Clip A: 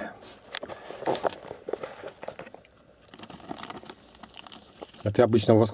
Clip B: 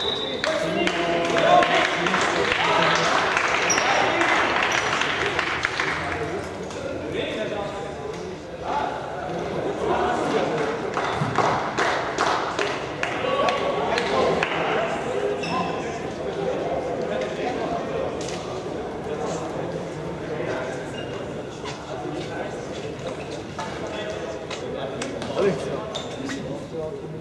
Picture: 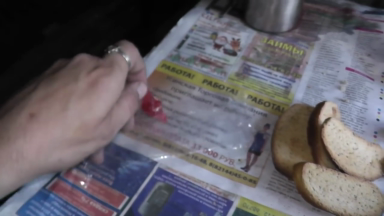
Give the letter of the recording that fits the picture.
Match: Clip A